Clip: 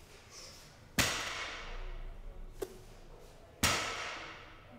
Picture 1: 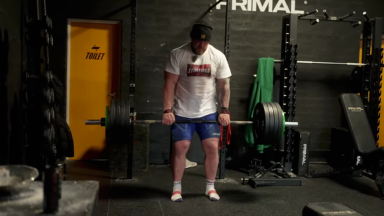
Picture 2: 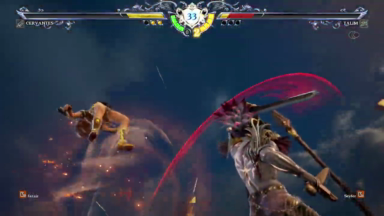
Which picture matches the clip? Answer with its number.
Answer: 1